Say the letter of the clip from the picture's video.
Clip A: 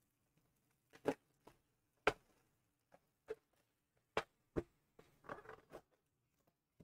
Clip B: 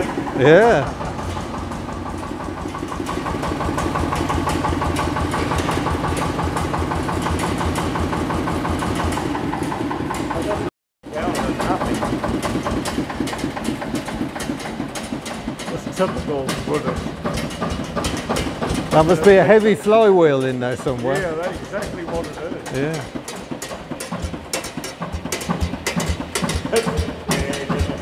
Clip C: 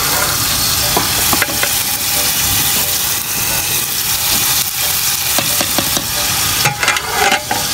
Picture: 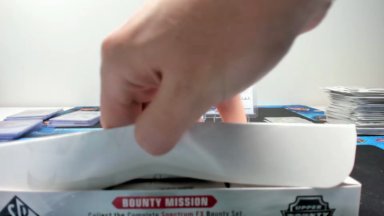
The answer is A